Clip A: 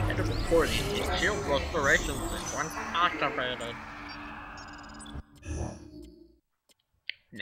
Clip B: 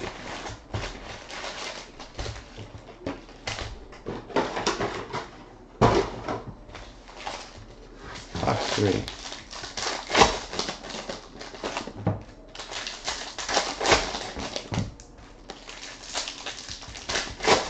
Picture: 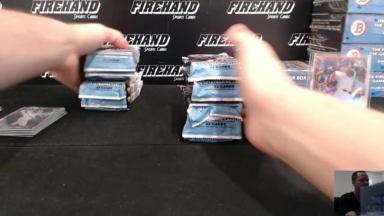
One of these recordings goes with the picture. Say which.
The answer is B